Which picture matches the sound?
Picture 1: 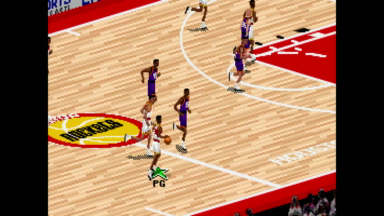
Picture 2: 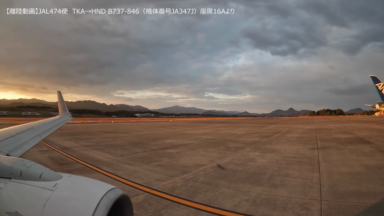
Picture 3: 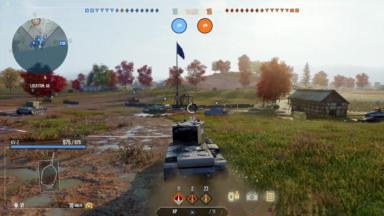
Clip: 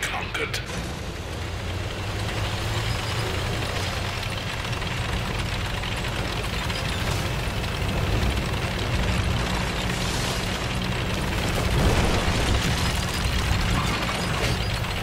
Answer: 3